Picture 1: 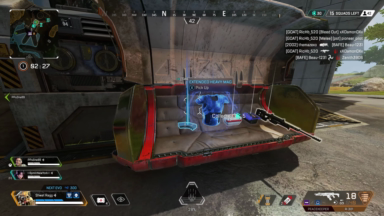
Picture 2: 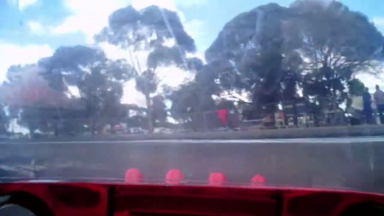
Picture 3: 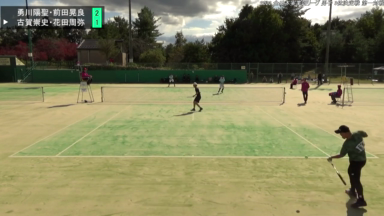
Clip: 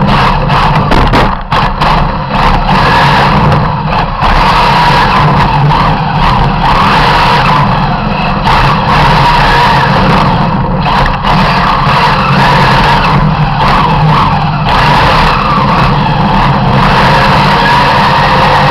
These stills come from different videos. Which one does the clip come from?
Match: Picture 2